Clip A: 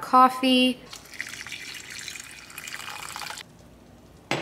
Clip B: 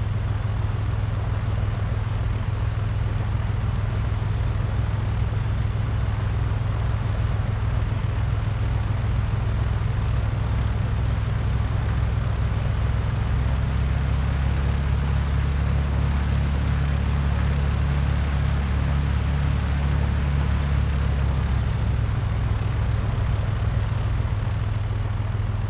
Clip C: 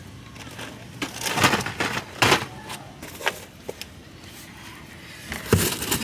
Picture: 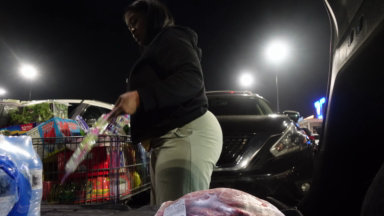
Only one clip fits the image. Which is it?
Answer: C